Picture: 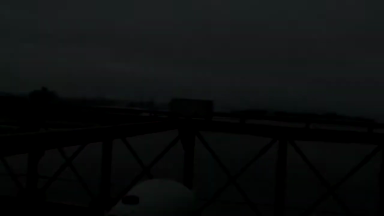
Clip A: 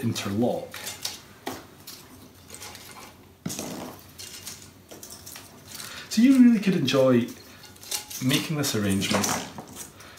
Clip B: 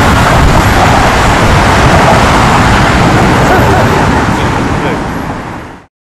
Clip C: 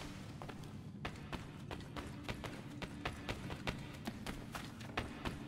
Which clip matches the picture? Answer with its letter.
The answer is B